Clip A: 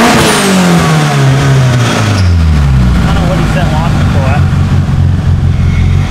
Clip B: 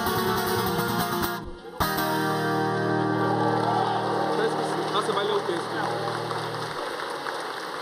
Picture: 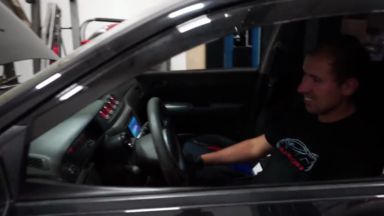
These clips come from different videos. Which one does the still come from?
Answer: A